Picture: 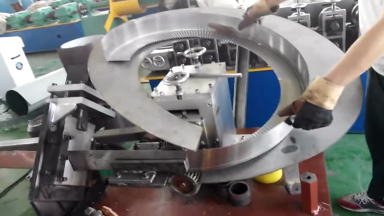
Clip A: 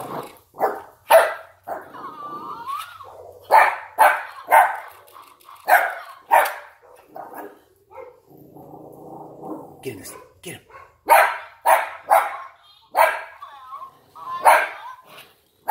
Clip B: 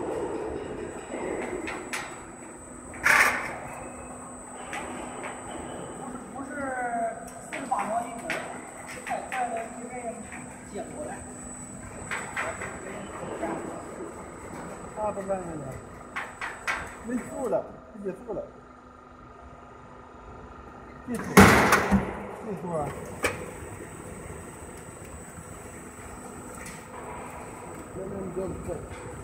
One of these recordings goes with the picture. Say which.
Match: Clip B